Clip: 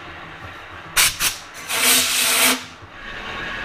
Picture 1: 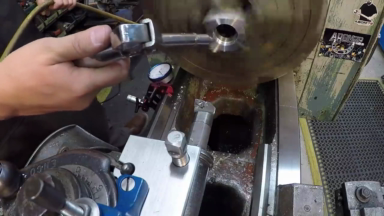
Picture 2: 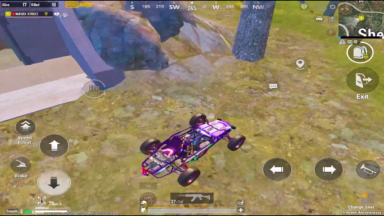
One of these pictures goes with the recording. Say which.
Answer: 1